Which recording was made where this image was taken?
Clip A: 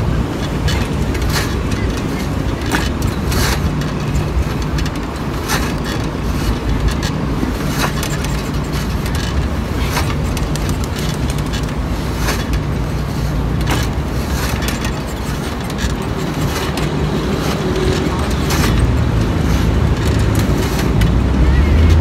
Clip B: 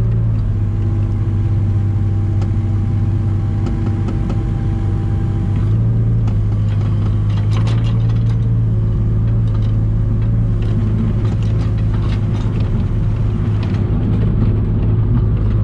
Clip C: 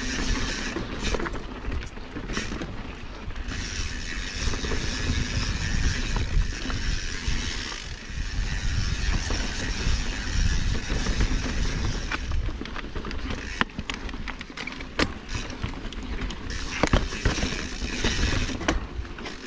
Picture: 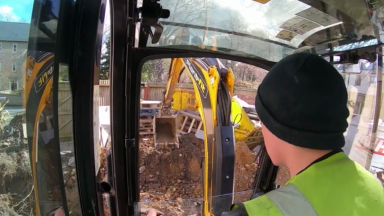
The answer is B